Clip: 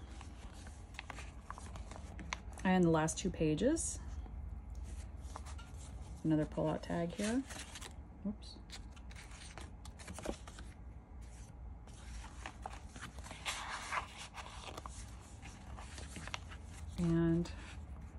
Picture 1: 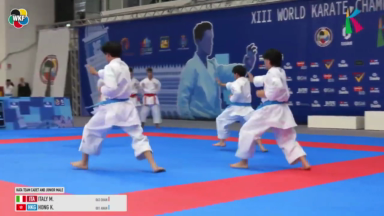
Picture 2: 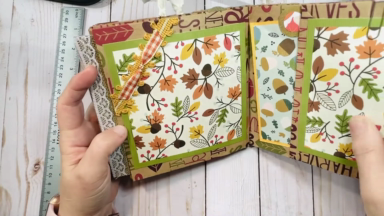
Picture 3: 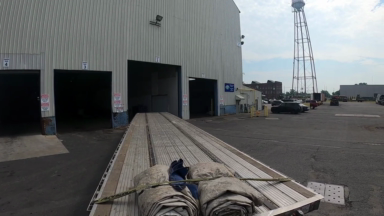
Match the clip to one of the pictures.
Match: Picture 2